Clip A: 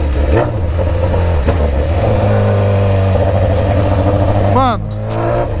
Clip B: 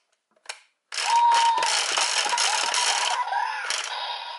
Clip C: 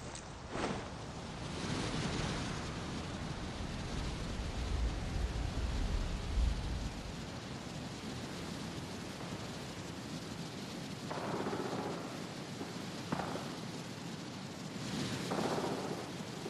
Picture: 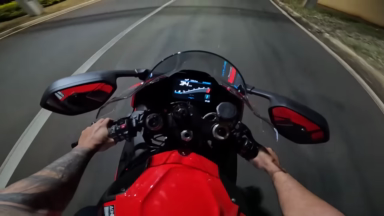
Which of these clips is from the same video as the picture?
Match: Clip A